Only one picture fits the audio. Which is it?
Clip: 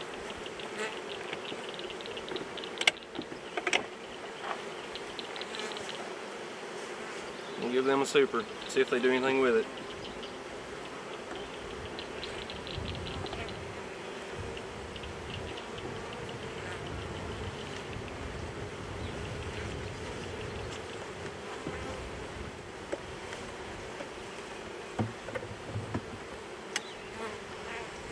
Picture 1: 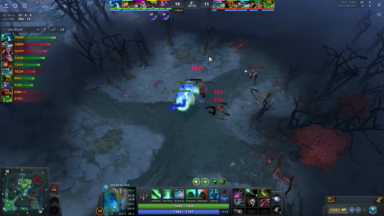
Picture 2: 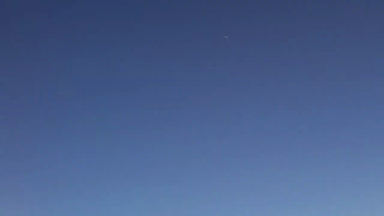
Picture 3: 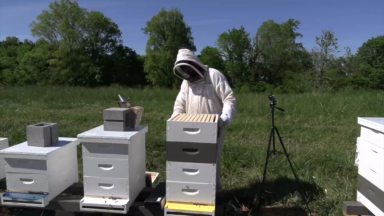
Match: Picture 3